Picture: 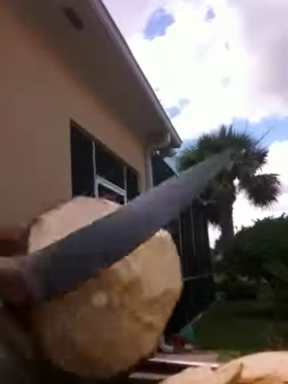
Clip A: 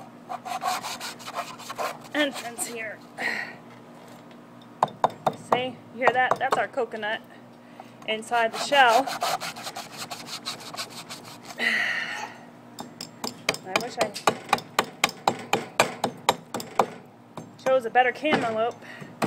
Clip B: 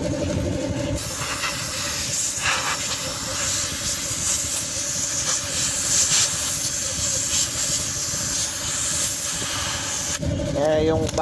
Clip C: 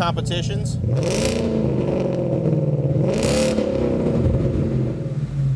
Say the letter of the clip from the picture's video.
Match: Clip A